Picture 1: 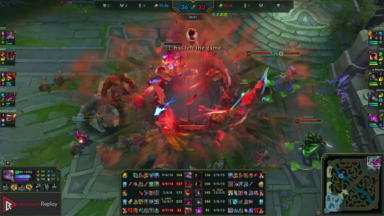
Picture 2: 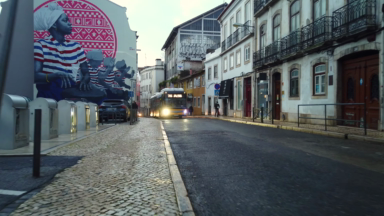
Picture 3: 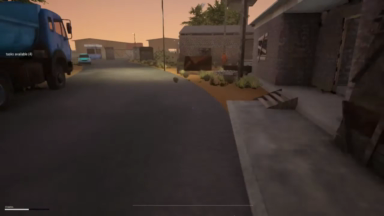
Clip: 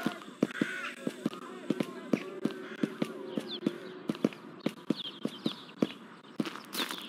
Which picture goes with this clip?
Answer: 3